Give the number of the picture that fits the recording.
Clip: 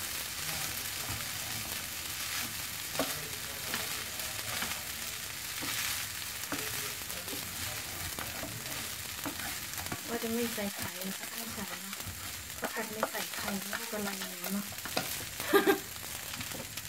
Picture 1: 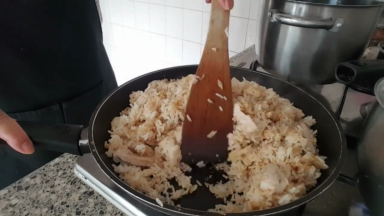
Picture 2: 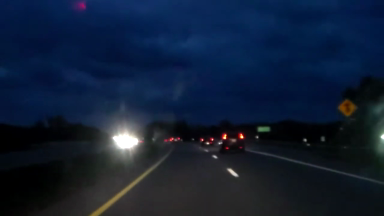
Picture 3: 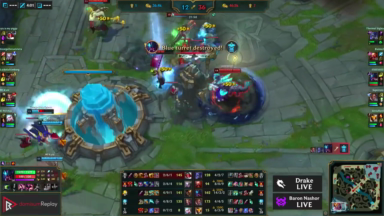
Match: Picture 1